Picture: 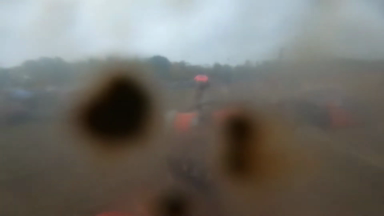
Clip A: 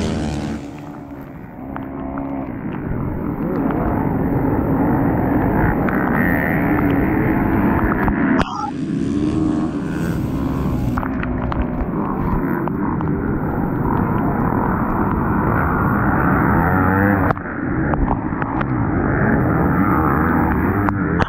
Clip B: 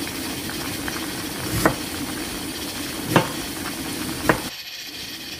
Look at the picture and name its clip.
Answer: A